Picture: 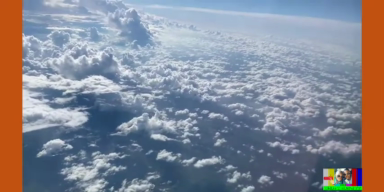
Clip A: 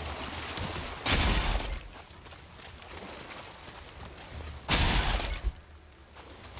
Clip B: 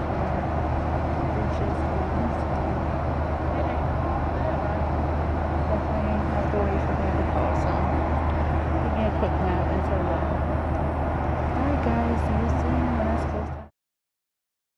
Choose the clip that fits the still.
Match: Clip B